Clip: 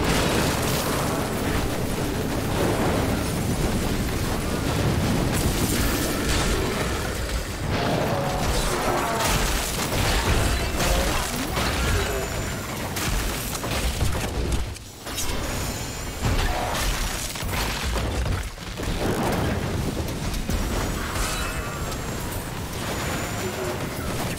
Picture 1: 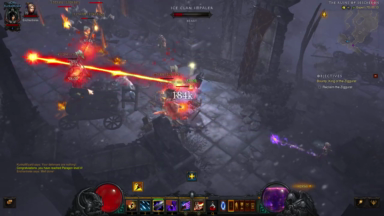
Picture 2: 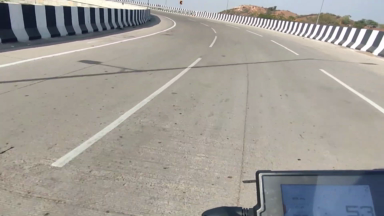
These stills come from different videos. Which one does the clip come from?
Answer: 1